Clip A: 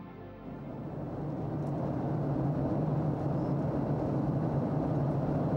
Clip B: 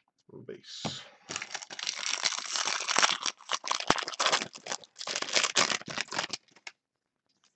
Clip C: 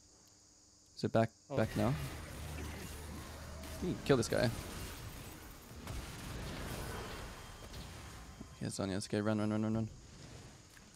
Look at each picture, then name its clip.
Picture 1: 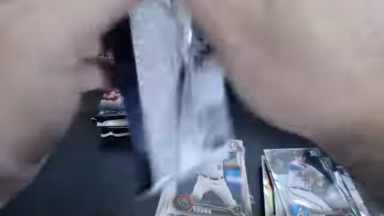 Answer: B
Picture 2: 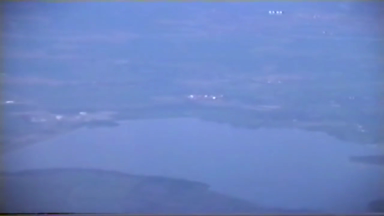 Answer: A